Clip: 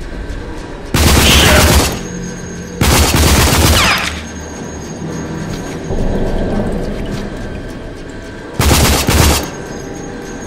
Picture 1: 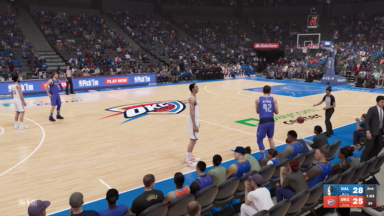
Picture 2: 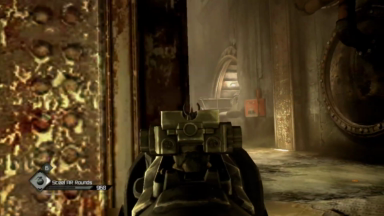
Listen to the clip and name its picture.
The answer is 2